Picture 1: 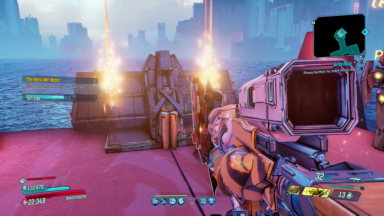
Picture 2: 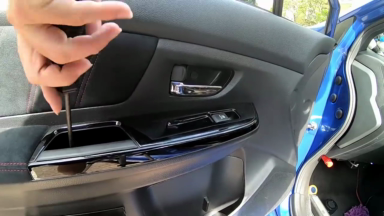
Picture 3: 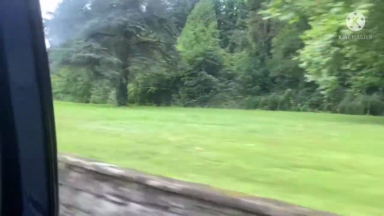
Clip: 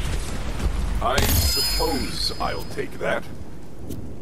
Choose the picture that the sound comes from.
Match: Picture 1